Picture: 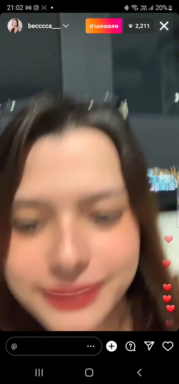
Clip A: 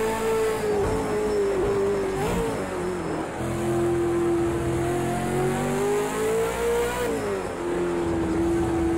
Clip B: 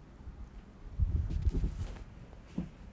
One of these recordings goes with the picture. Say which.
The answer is B